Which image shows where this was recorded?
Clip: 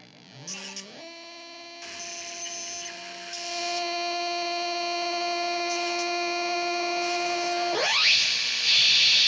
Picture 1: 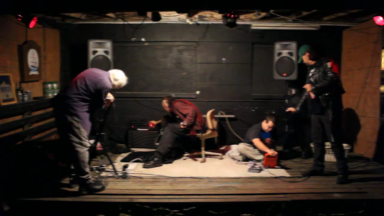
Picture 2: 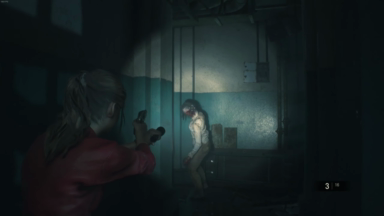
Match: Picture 1